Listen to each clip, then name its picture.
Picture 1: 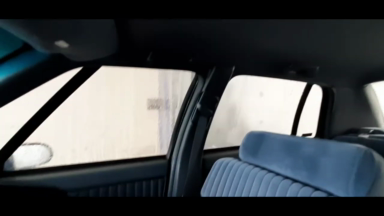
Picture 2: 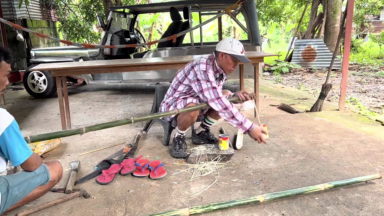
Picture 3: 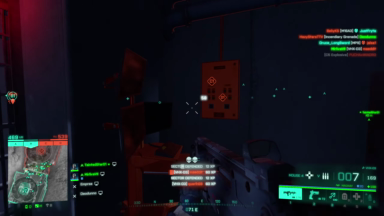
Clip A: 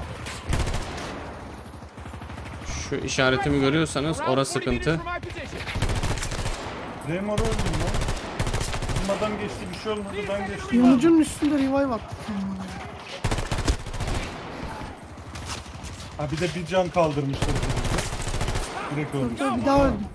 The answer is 3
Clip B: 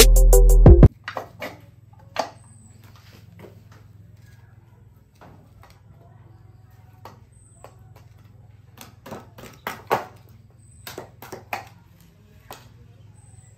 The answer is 2